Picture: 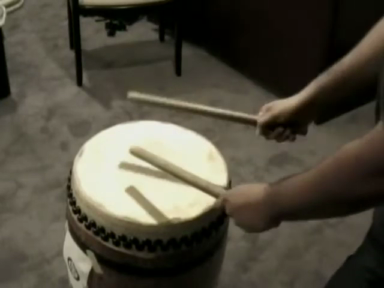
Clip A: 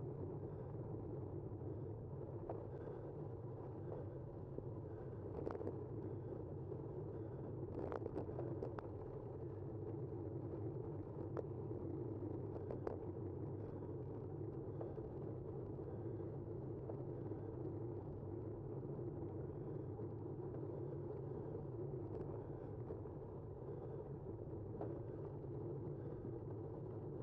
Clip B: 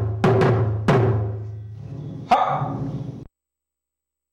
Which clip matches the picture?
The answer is B